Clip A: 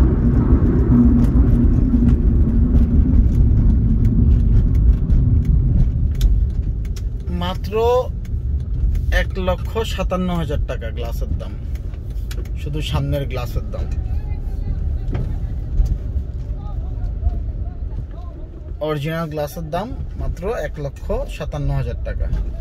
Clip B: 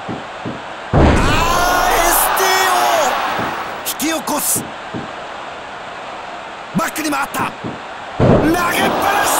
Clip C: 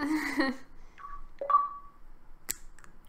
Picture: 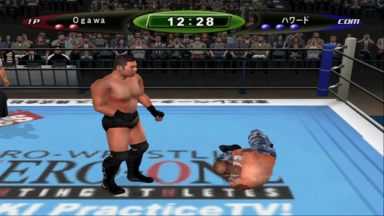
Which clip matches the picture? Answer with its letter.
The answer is B